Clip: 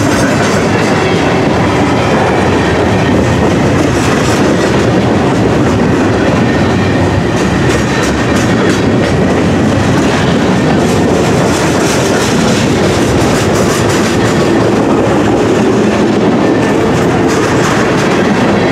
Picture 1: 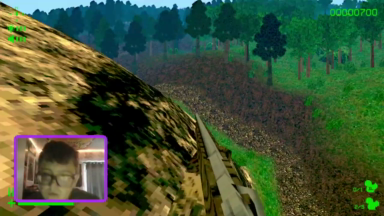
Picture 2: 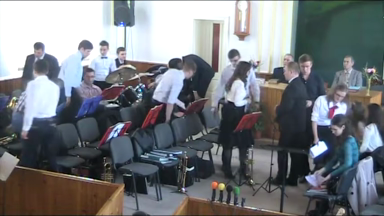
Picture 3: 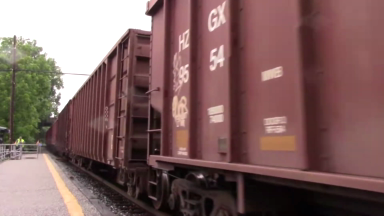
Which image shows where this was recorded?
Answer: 3